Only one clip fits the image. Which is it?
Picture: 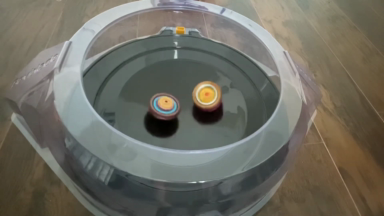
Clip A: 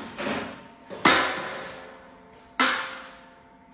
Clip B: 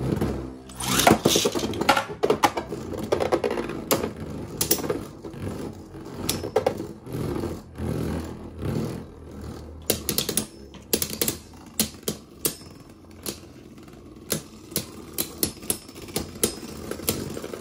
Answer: B